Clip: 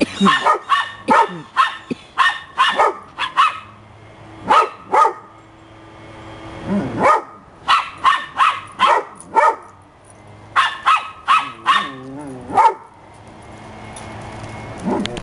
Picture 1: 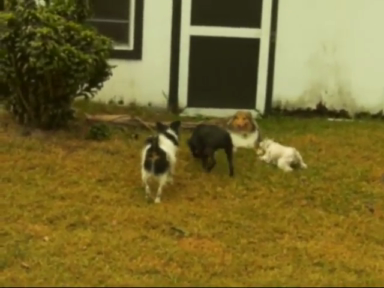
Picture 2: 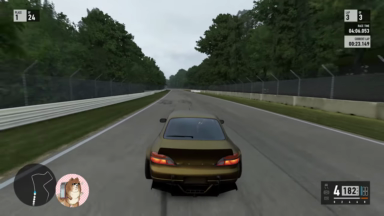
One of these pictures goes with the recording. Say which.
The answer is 1